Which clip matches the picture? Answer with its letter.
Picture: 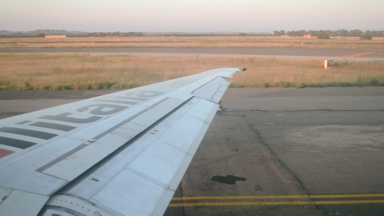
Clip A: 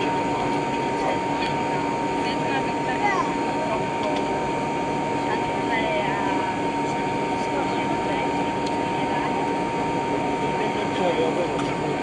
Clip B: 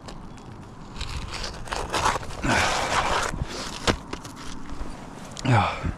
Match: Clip A